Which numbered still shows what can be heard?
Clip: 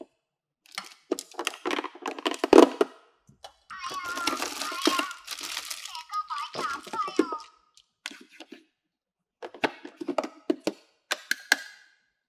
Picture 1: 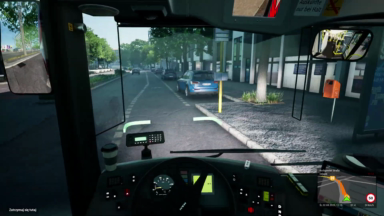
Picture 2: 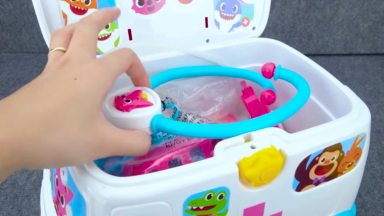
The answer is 2